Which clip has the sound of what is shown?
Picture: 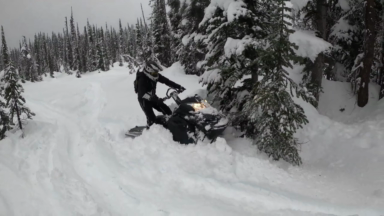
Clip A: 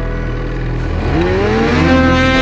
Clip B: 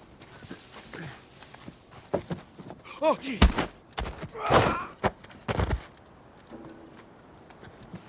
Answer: A